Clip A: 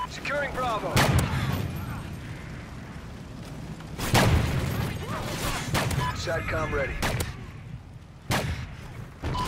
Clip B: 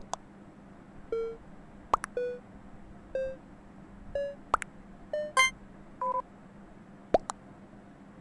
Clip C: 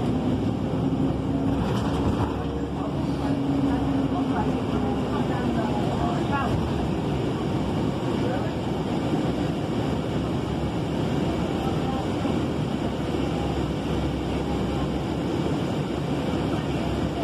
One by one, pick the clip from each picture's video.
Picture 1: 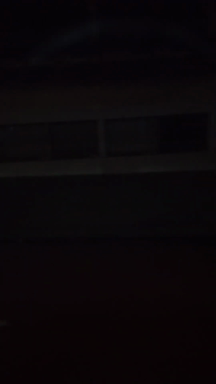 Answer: C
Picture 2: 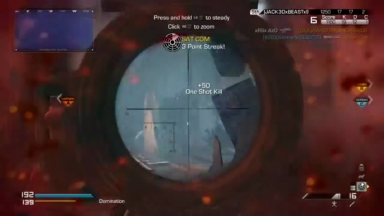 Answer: A